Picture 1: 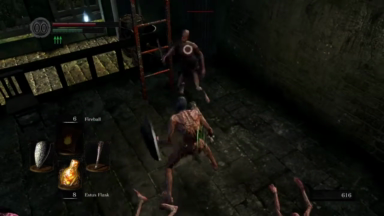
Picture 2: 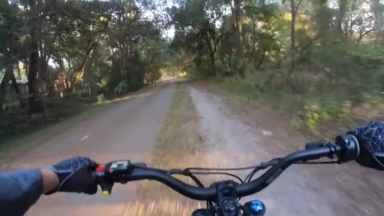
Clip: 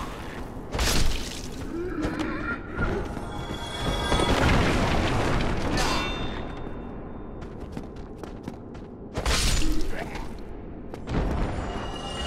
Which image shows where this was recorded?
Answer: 1